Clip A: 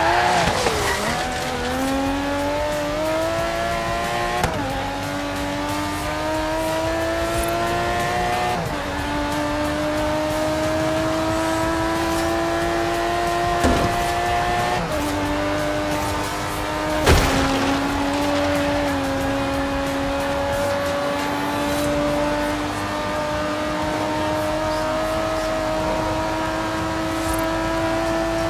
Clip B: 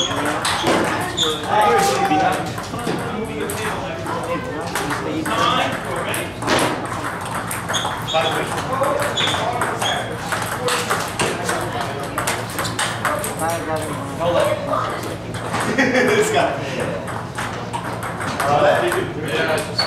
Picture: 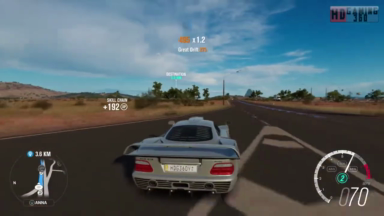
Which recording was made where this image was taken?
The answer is A